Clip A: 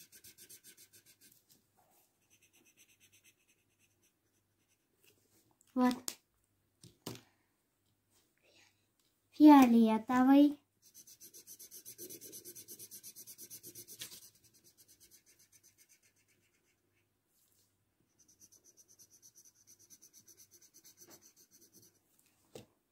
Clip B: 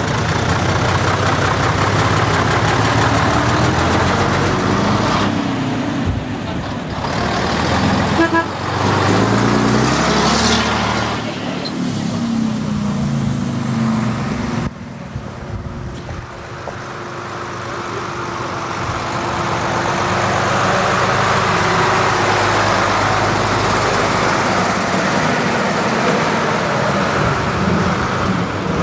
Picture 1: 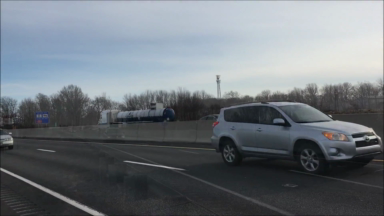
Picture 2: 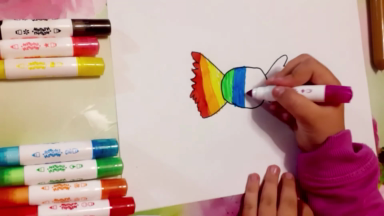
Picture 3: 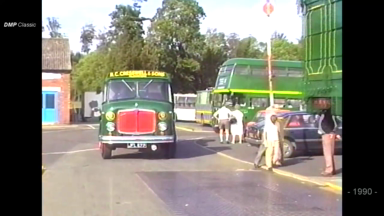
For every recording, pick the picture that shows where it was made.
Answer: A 2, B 3